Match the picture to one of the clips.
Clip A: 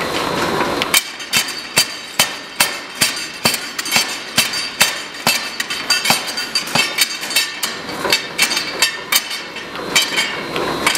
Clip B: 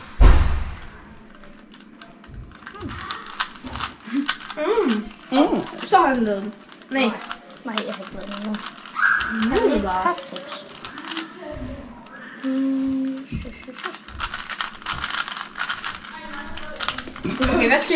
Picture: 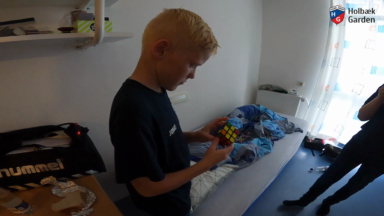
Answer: B